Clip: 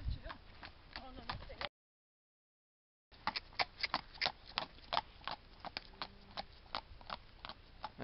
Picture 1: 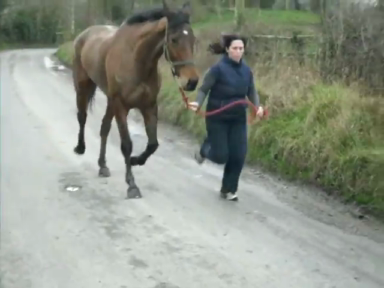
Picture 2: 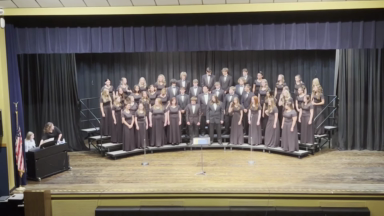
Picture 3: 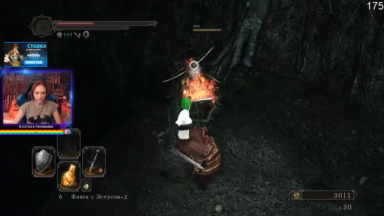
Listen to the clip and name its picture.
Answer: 1